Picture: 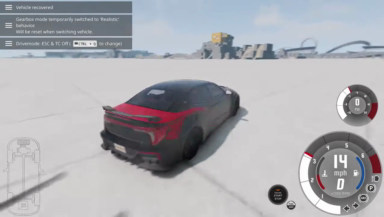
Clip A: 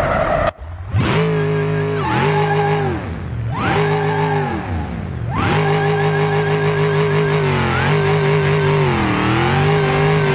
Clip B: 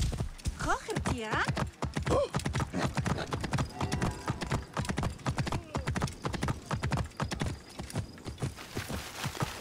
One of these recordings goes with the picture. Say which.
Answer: A